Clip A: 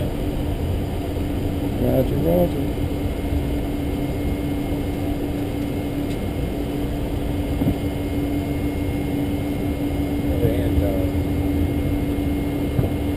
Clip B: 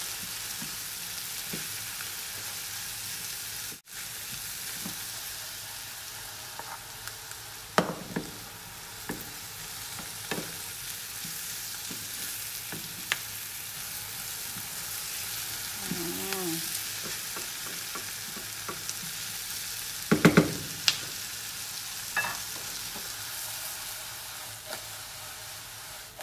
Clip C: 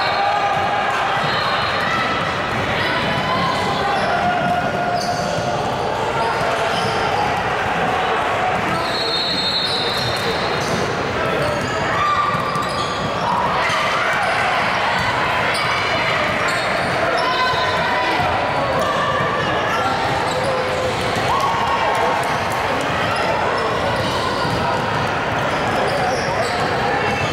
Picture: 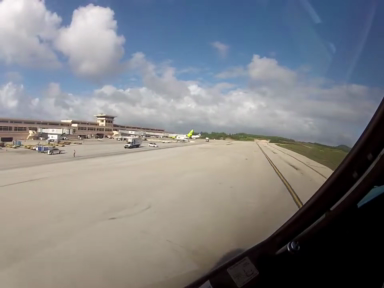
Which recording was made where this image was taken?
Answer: A